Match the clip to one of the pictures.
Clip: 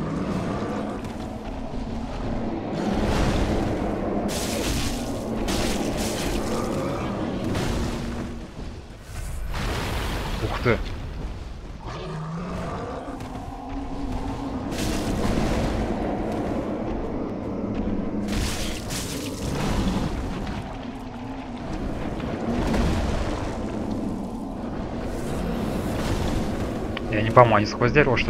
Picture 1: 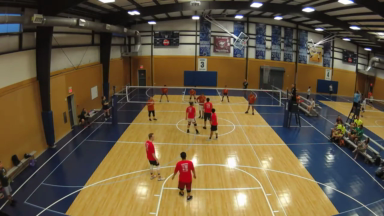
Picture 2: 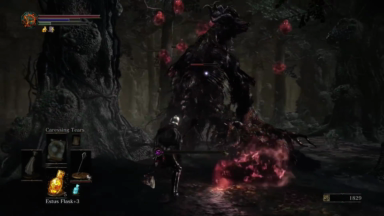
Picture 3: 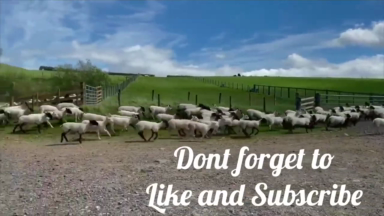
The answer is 2